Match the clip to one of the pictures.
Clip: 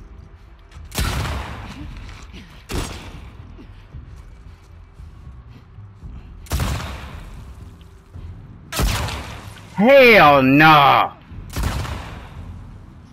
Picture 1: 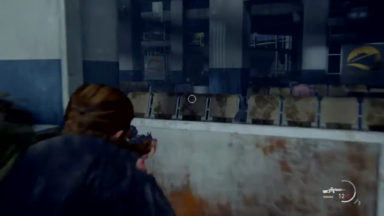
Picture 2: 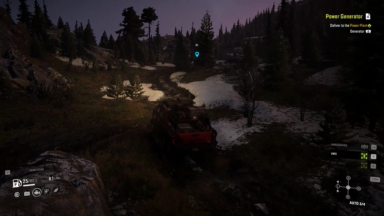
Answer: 1